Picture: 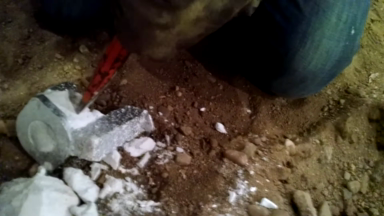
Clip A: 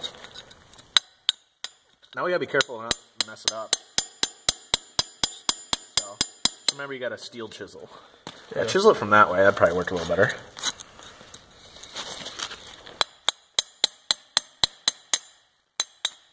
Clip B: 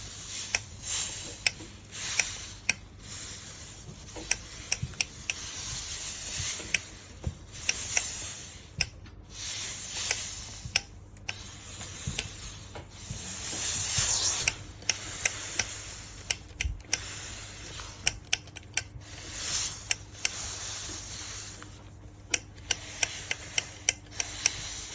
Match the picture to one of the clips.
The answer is A